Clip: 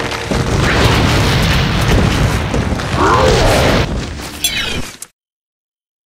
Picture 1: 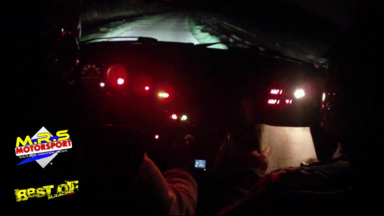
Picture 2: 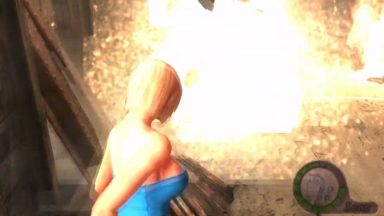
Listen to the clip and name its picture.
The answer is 2